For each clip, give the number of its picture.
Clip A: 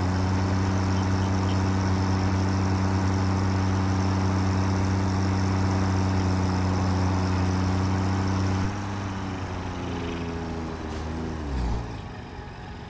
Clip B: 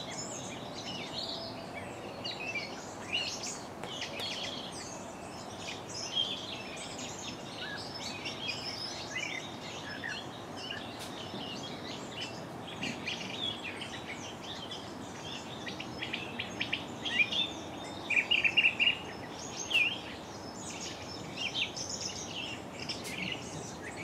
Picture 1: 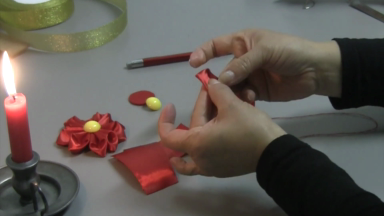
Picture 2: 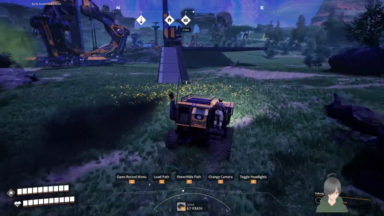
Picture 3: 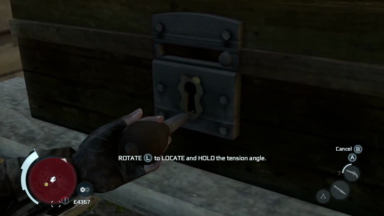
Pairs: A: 2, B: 1